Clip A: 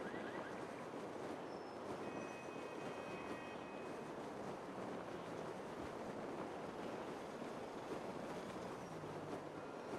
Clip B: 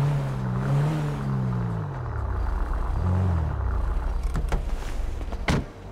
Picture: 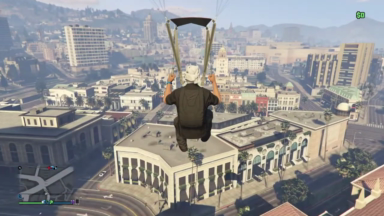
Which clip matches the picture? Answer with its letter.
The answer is A